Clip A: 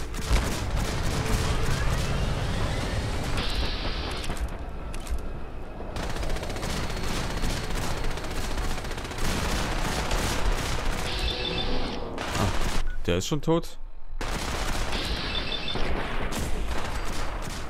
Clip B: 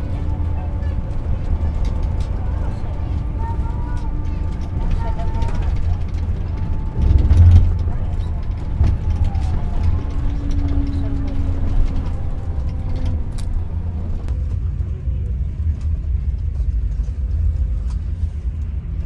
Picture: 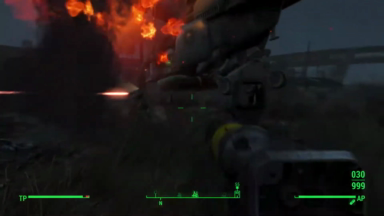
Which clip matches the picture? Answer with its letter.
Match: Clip A